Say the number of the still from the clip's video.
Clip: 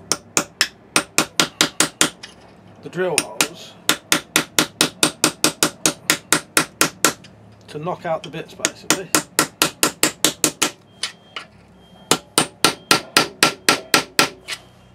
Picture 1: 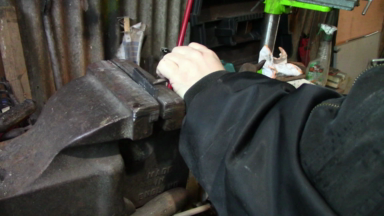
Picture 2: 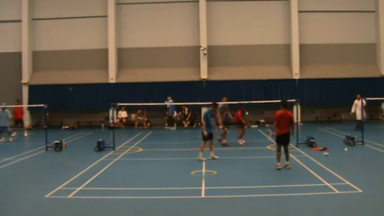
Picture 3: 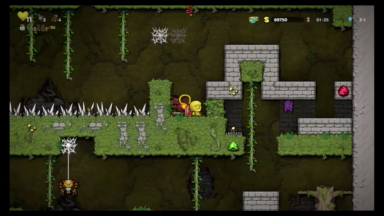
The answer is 1